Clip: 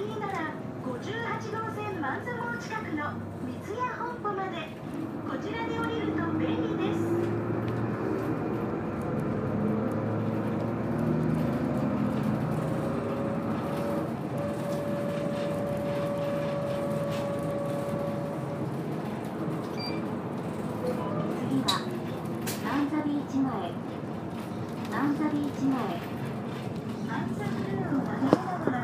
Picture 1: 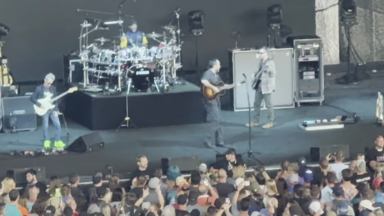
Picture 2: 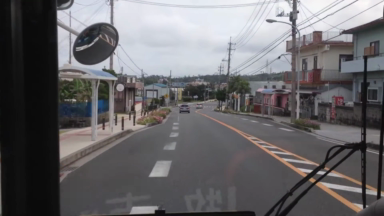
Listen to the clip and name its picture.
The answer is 2